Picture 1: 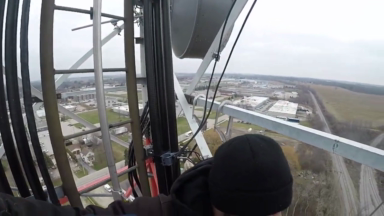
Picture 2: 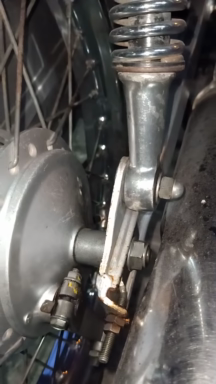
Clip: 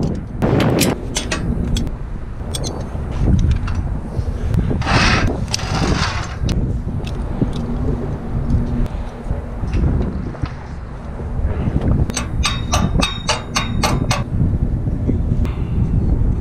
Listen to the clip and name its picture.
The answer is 1